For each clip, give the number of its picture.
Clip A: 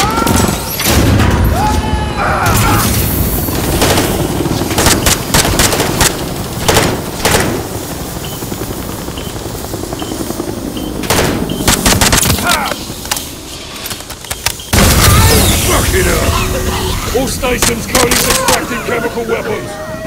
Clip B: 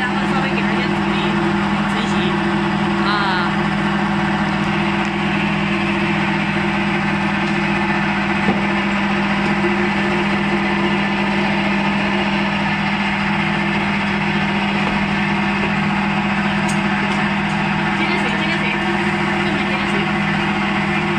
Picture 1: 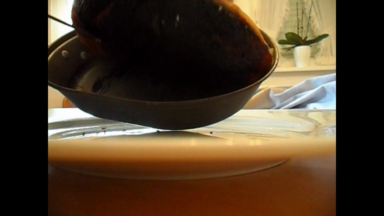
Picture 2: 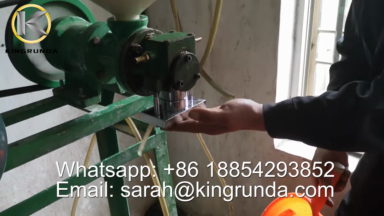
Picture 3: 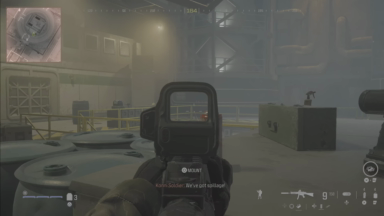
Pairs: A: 3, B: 2